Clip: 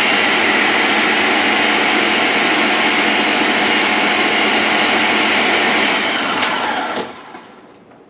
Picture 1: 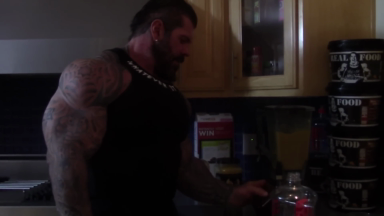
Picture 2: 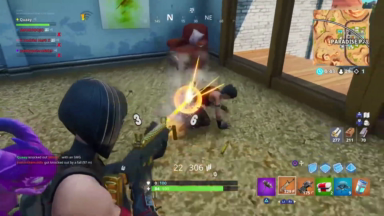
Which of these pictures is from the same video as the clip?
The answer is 1